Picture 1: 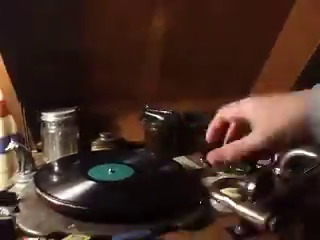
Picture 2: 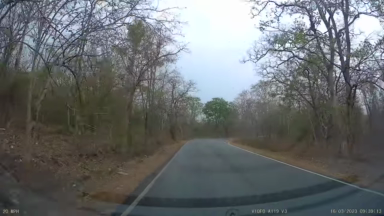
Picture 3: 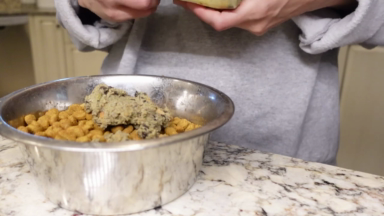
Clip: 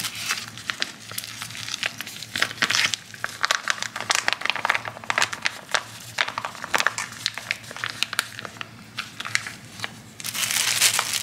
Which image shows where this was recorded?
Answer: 3